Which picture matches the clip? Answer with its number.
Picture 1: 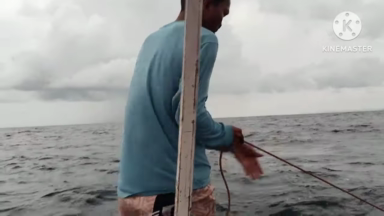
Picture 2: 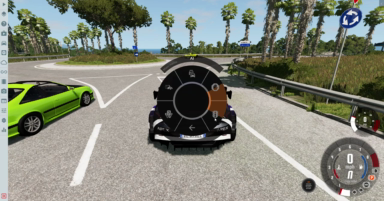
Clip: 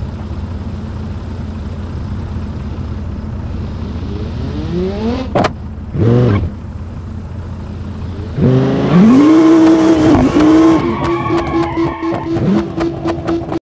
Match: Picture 2